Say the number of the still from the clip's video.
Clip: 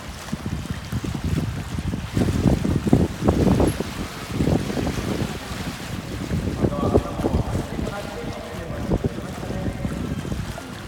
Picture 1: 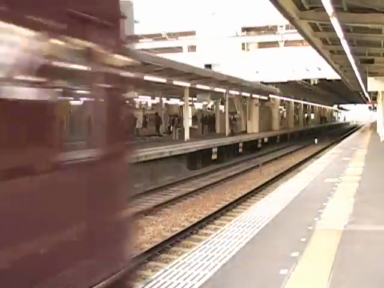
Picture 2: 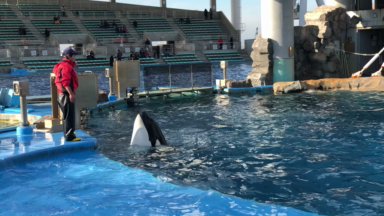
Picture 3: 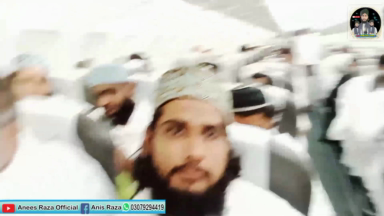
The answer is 2